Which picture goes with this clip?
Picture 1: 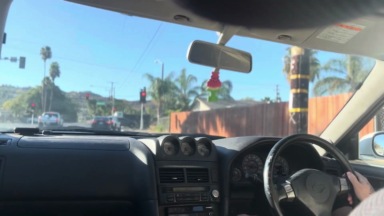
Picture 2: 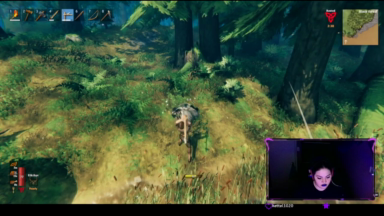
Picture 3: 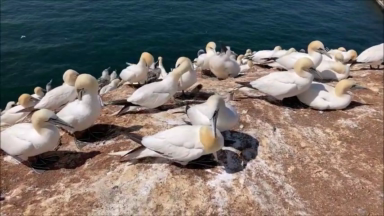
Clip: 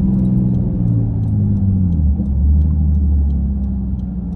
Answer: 1